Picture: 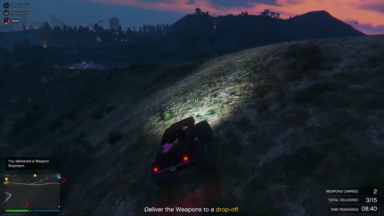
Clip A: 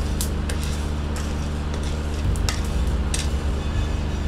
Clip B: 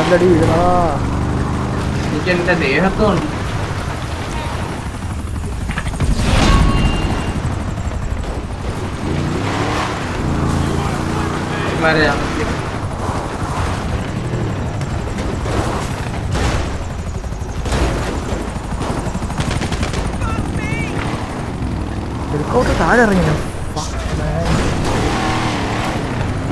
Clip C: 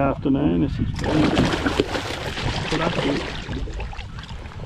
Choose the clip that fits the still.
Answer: B